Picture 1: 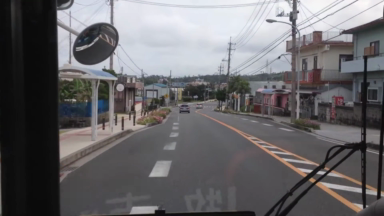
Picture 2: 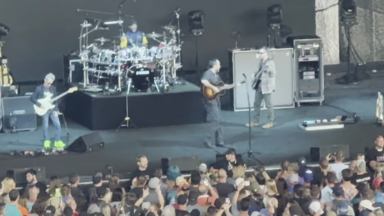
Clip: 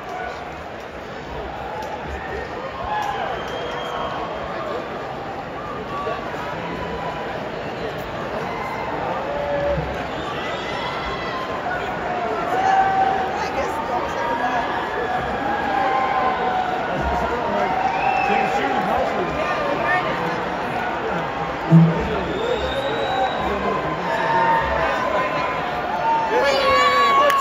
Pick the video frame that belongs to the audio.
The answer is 2